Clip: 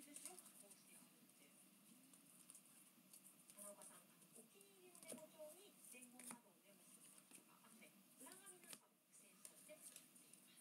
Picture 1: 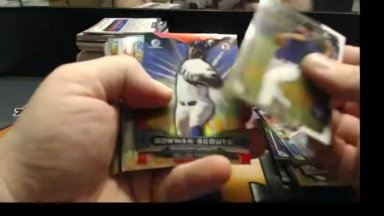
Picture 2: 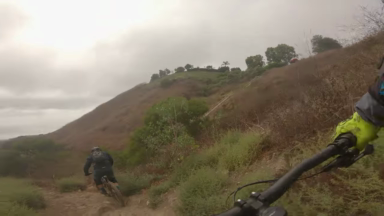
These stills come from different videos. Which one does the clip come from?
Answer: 1